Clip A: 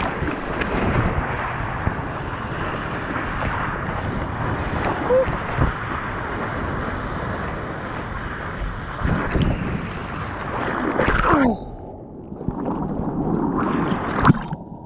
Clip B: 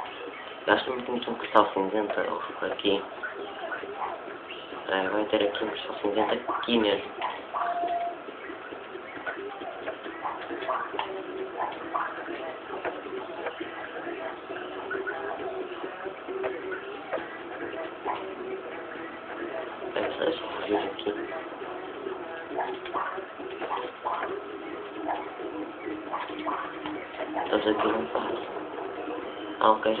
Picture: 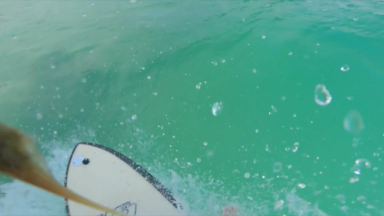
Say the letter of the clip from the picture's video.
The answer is A